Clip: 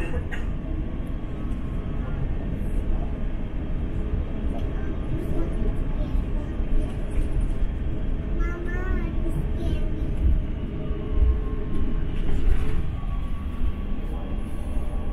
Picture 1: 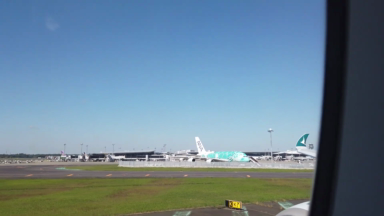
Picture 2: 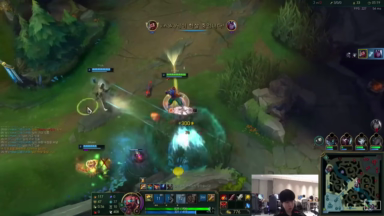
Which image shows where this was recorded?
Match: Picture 1